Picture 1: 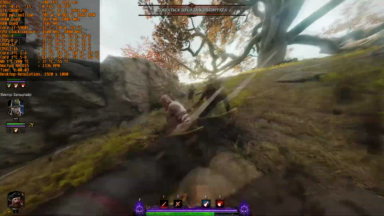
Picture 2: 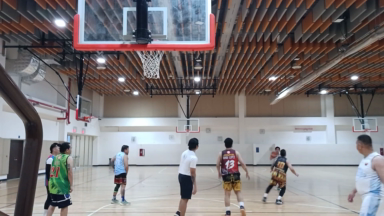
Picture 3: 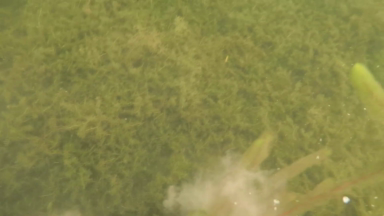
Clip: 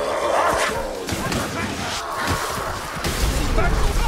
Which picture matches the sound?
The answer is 1